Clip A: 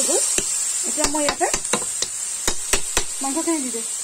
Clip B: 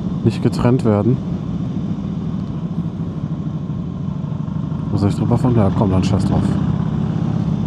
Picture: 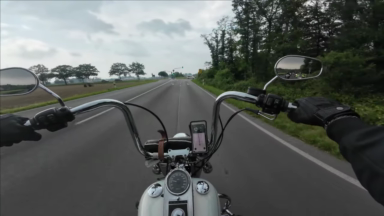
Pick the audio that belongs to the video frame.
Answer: B